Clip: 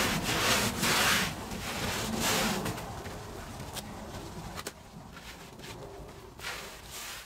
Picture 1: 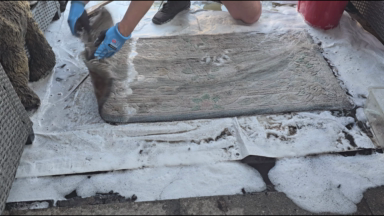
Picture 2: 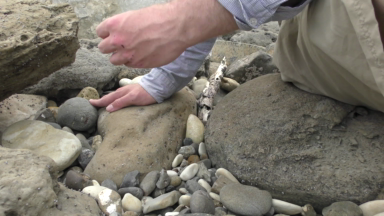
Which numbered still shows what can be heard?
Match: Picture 1